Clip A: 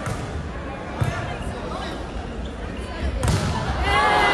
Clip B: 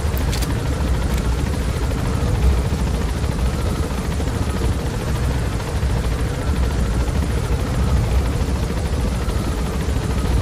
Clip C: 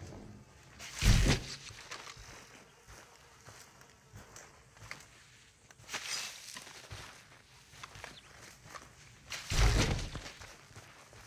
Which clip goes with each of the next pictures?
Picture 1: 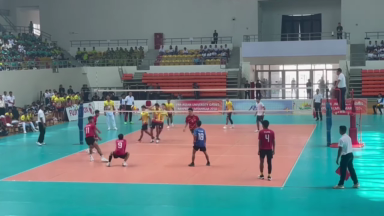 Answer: A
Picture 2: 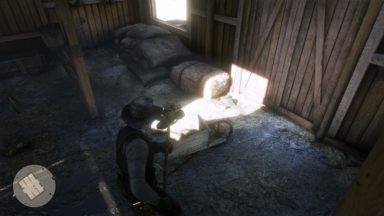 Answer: C